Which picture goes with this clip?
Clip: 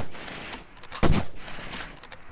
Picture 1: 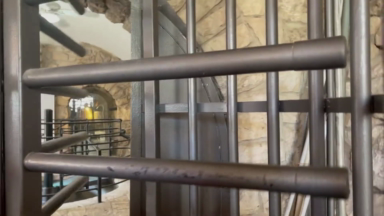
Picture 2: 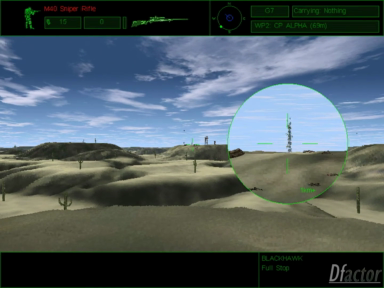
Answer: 2